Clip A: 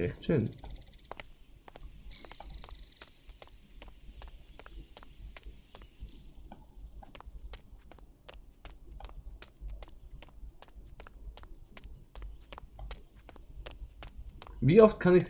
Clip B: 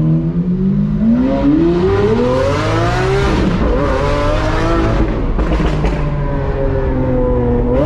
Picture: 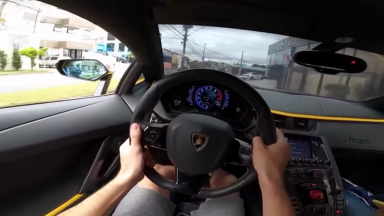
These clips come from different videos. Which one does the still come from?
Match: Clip B